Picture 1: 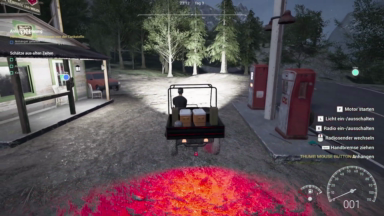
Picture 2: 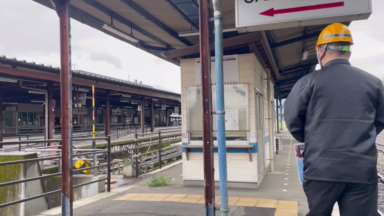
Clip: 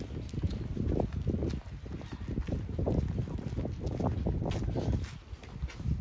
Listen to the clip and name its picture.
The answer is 2